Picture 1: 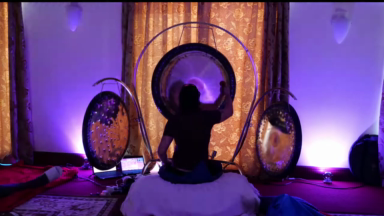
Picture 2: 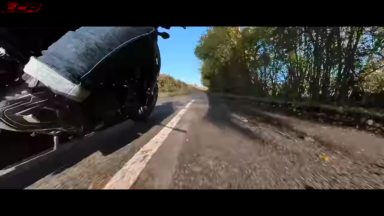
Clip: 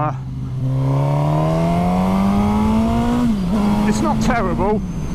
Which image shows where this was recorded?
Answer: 2